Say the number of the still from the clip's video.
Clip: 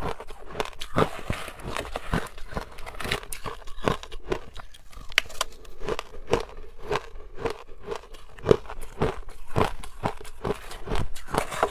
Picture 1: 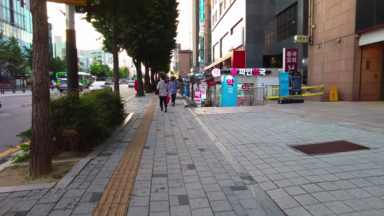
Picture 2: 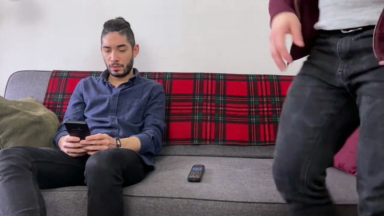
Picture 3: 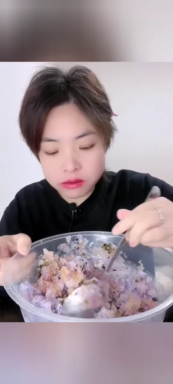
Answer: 3